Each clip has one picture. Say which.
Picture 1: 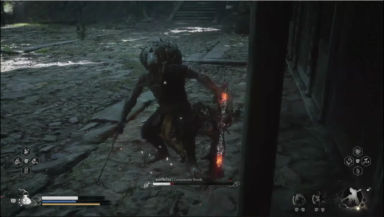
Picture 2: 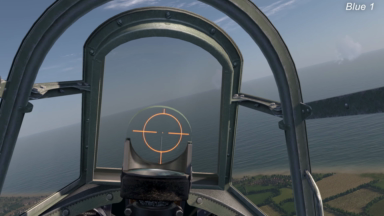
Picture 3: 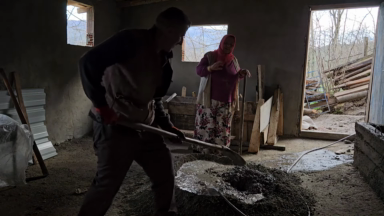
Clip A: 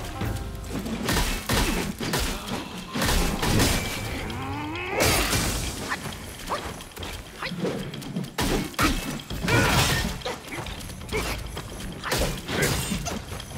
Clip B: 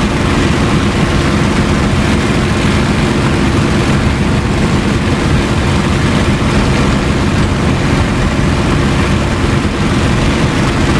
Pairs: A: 1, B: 2